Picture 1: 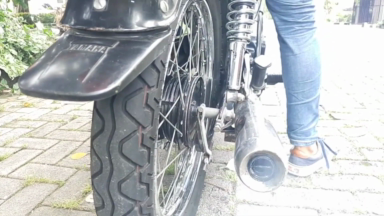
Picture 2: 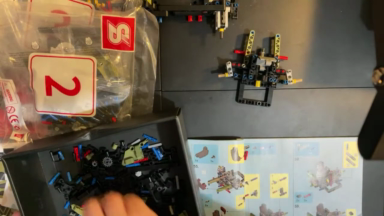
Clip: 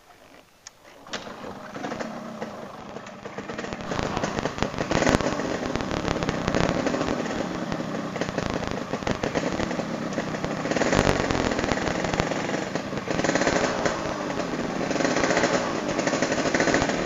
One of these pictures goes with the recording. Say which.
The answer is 1